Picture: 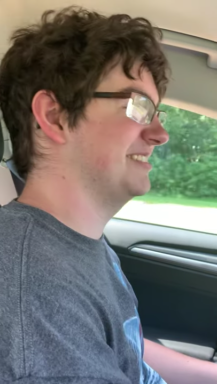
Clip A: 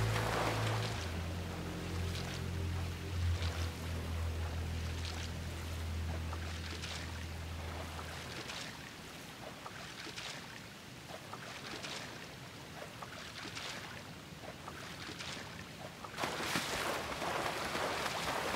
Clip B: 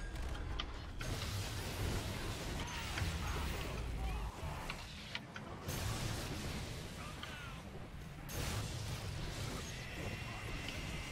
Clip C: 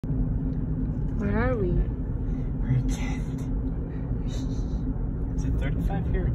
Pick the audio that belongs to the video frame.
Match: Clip C